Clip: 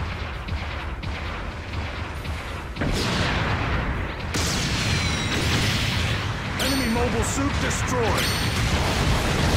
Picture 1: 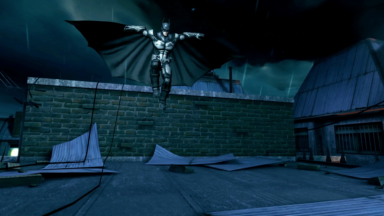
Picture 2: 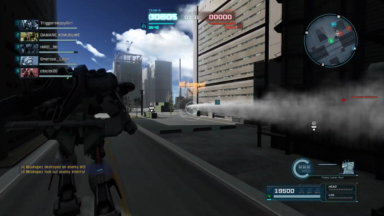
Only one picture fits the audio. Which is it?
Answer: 2